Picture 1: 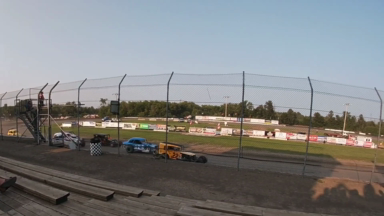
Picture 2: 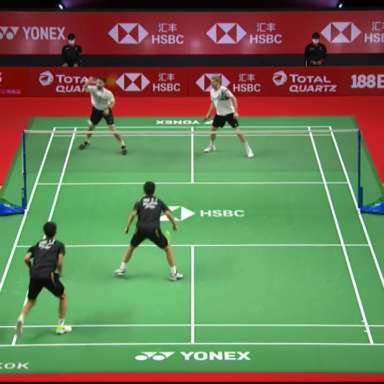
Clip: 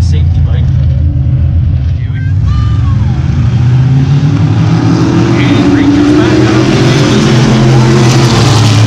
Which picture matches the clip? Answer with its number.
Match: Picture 1